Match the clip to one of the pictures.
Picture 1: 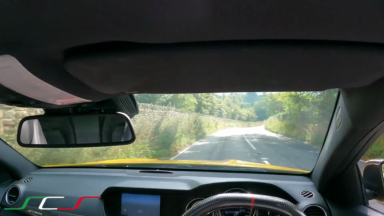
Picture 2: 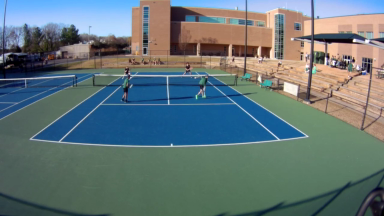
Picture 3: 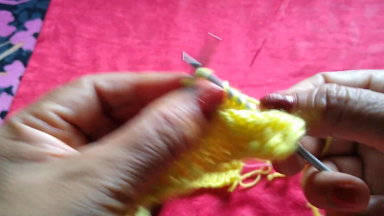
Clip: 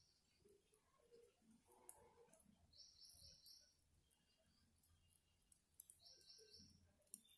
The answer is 3